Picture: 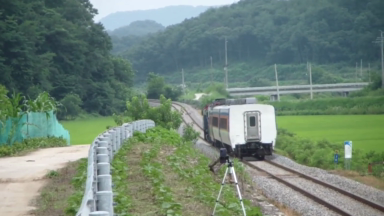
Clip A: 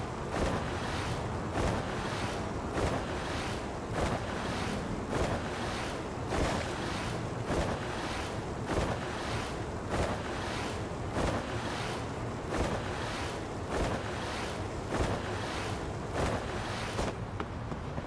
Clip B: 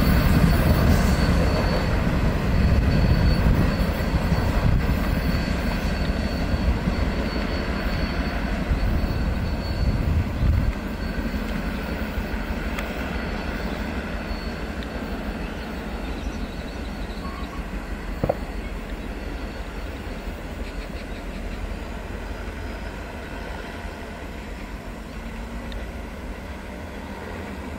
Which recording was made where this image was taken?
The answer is B